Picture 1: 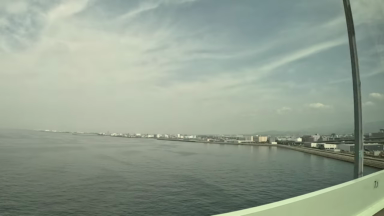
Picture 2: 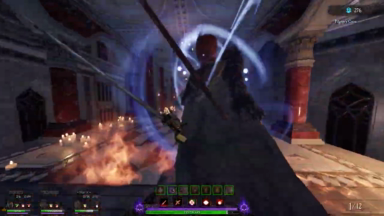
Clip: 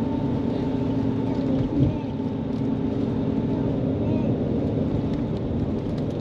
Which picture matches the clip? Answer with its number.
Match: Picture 1